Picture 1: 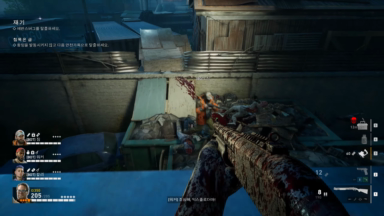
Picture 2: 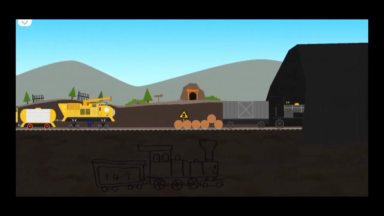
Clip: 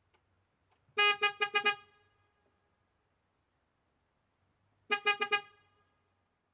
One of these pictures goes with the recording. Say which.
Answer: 2